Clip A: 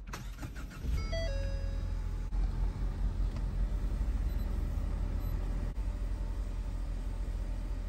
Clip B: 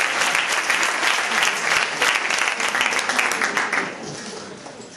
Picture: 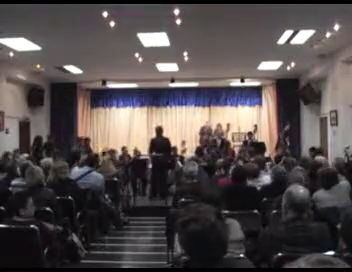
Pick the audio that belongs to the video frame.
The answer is B